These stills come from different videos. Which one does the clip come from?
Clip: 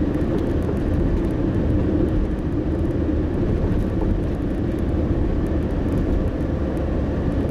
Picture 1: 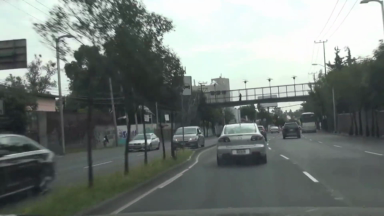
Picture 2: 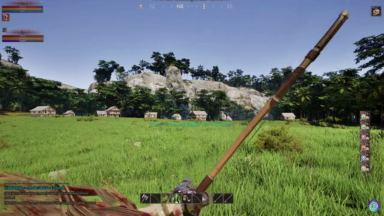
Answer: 1